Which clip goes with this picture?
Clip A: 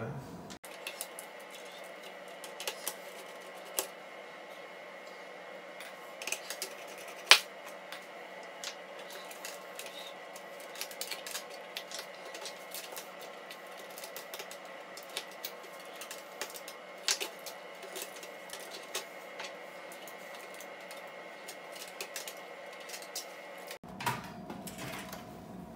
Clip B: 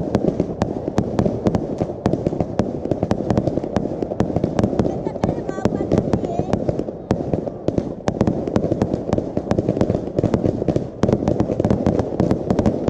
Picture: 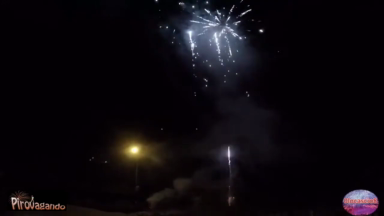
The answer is B